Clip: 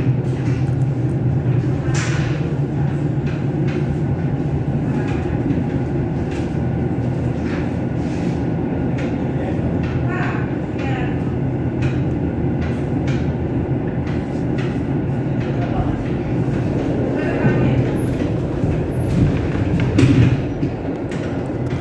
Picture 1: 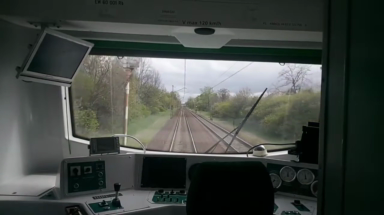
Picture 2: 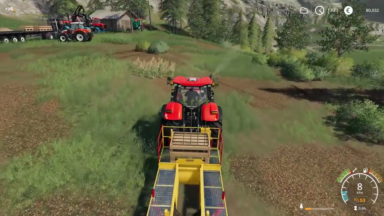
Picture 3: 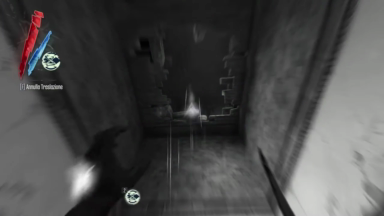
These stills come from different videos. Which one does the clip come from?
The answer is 1